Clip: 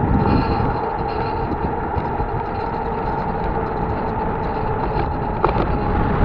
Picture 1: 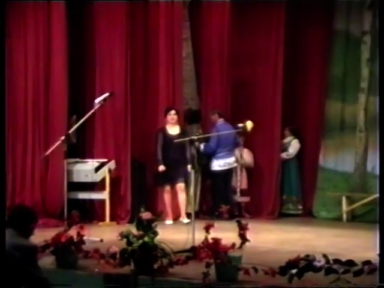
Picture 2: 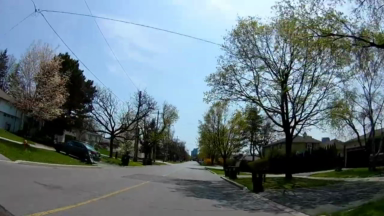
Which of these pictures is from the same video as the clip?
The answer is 2